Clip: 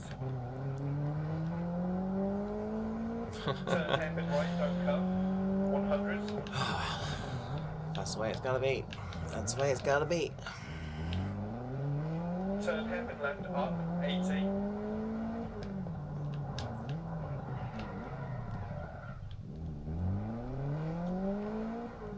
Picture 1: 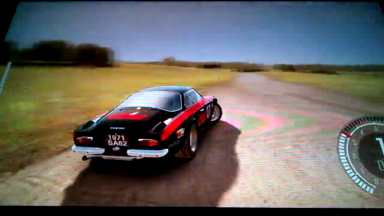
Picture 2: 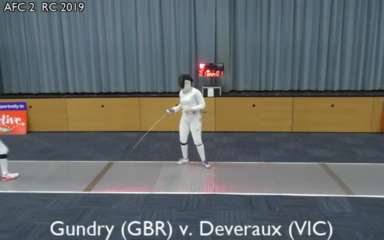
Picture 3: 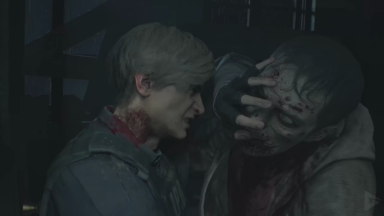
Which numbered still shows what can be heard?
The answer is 1